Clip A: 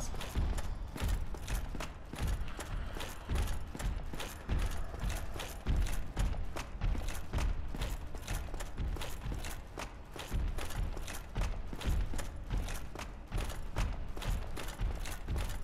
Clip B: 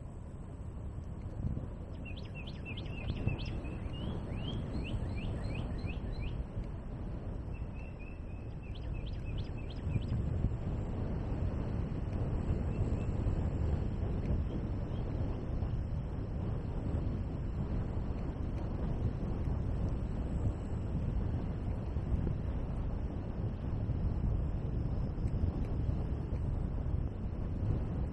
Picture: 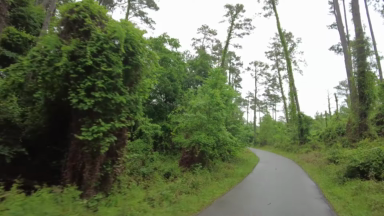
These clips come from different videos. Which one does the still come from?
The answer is B